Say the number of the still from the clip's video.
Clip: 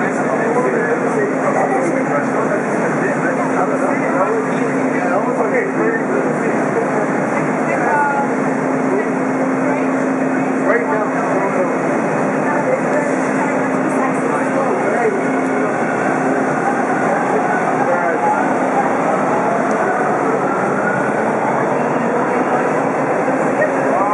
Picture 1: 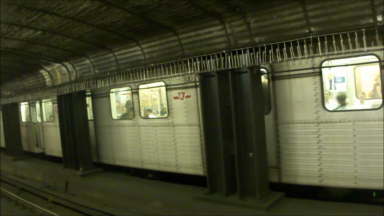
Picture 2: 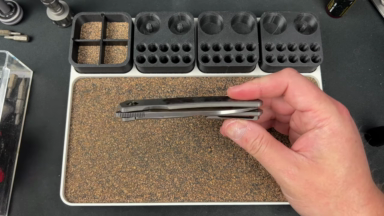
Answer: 1